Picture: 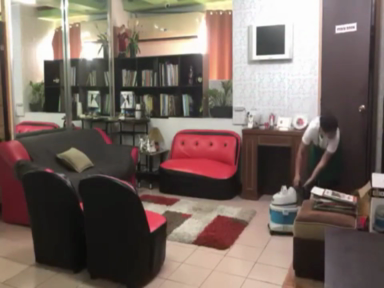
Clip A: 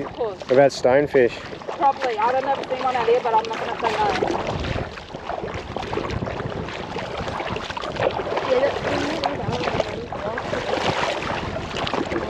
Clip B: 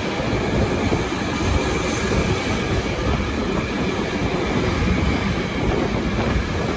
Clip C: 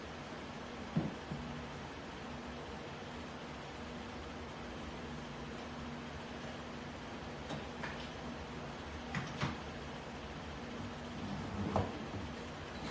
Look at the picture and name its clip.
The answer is C